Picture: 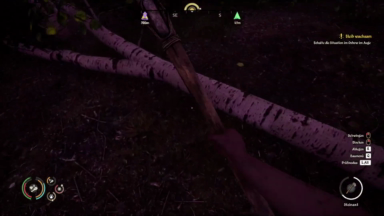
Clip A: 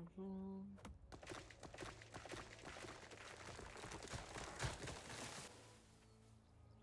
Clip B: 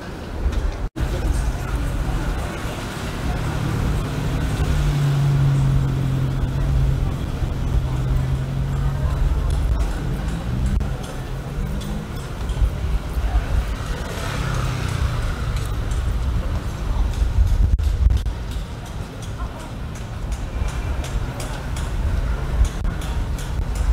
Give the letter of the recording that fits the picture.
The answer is A